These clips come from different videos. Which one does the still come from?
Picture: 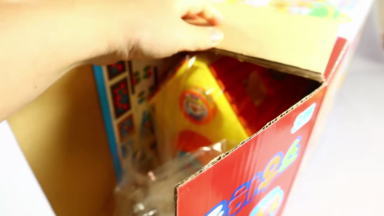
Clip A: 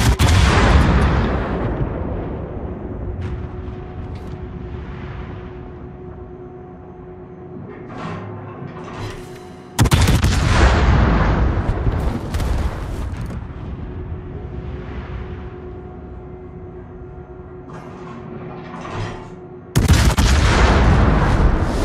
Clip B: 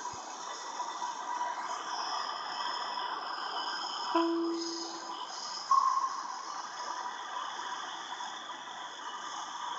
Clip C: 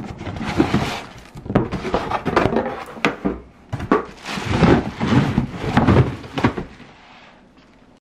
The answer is C